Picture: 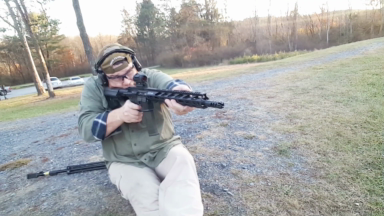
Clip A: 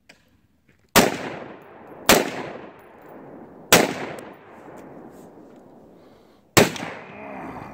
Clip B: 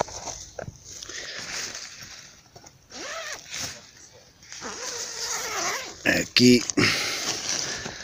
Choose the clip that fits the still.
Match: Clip A